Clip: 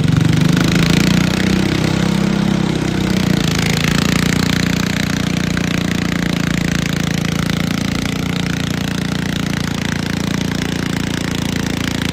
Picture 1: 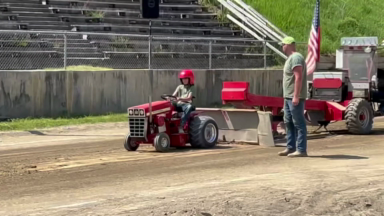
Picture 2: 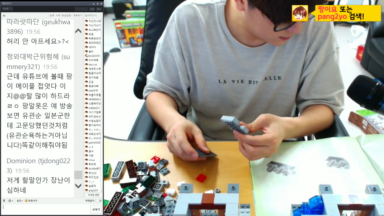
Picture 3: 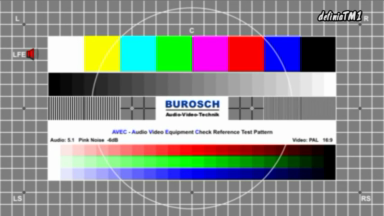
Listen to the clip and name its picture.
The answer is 1